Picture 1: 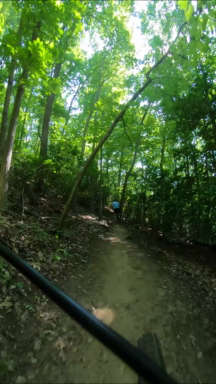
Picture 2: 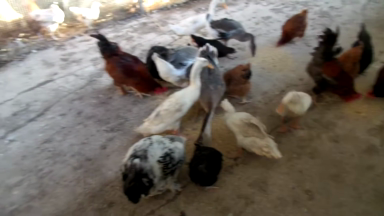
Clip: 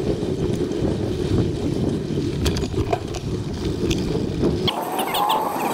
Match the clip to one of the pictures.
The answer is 1